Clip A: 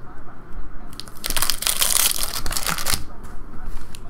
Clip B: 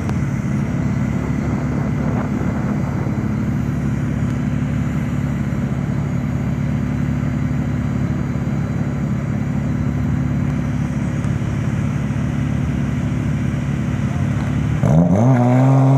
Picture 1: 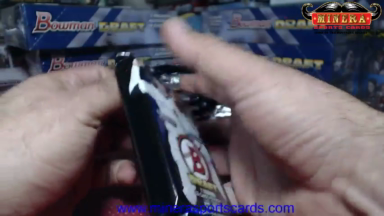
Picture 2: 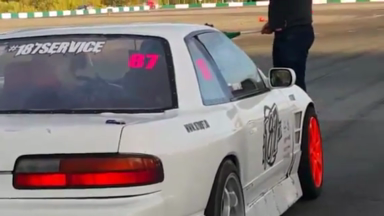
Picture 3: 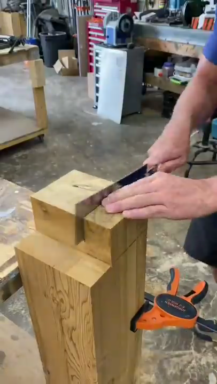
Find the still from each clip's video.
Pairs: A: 1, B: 2